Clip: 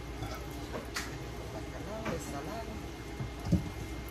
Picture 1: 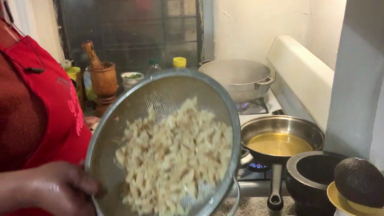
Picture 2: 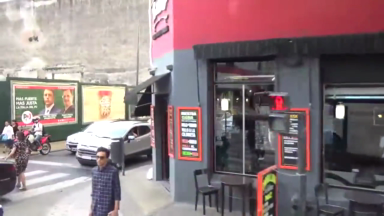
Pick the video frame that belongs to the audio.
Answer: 1